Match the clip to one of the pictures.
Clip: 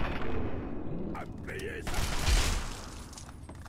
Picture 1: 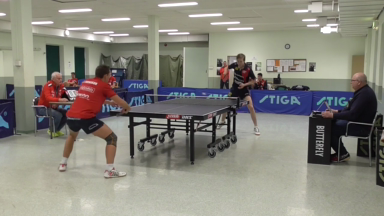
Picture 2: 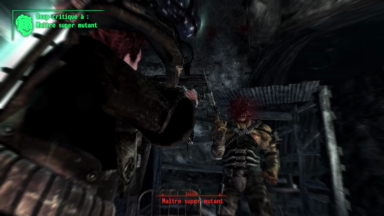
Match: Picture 2